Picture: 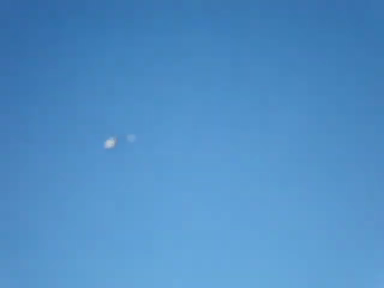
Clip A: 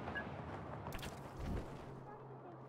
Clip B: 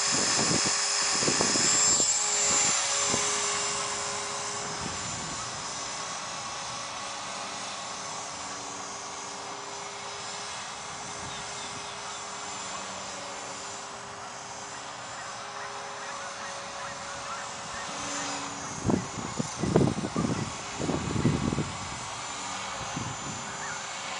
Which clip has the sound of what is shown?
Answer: B